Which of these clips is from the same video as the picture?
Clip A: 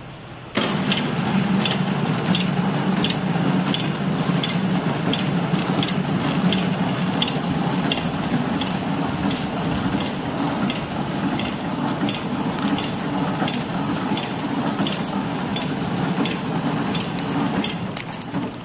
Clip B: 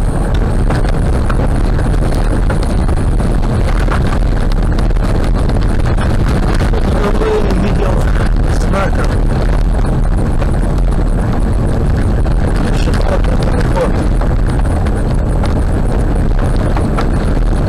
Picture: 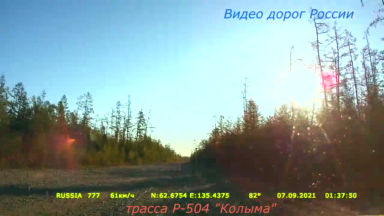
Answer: B